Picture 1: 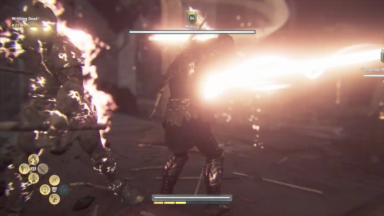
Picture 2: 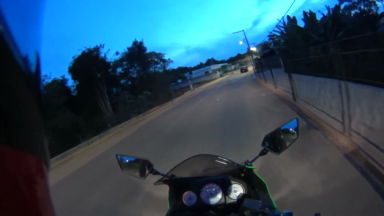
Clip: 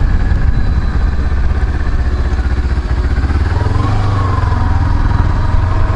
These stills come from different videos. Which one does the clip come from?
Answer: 2